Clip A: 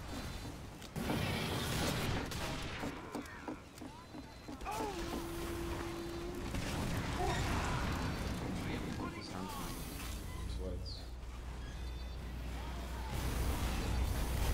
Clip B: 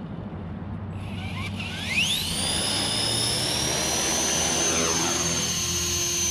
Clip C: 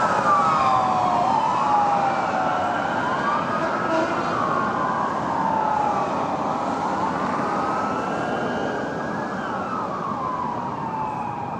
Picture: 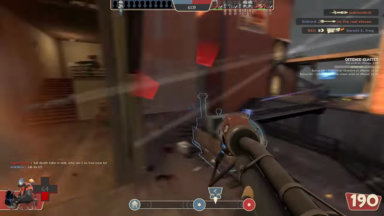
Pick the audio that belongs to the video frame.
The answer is A